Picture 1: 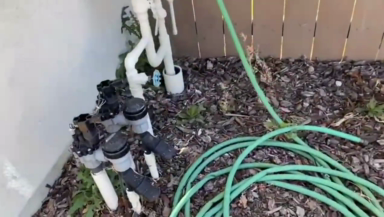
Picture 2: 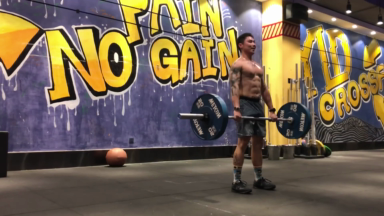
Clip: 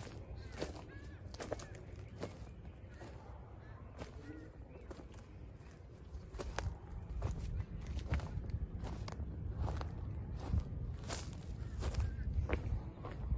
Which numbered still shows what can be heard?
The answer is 1